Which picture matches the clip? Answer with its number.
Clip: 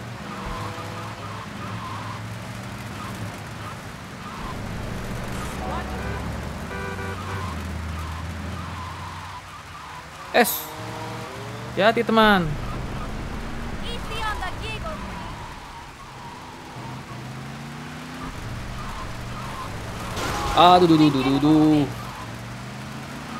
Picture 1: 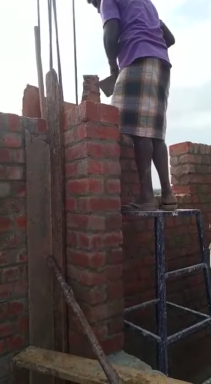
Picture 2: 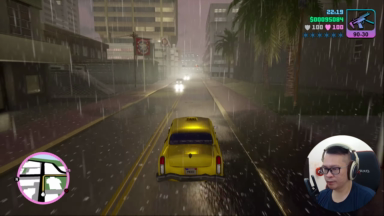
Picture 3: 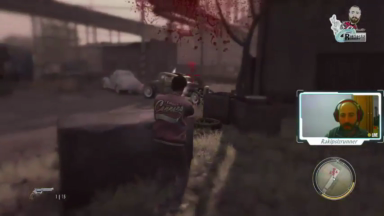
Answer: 2